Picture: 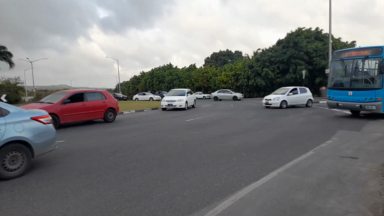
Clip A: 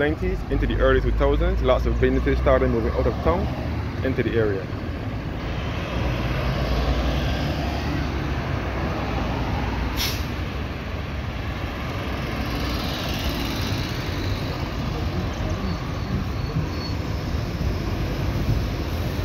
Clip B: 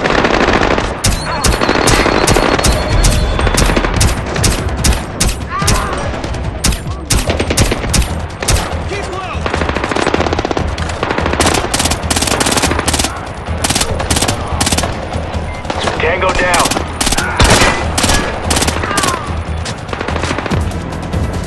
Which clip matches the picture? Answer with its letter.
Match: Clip A